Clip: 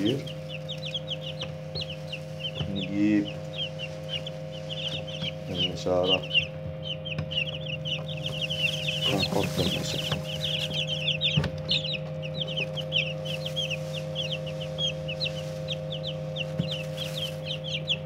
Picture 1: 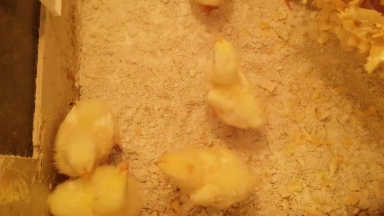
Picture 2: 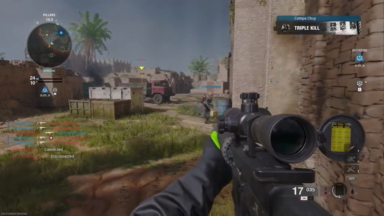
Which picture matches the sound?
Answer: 1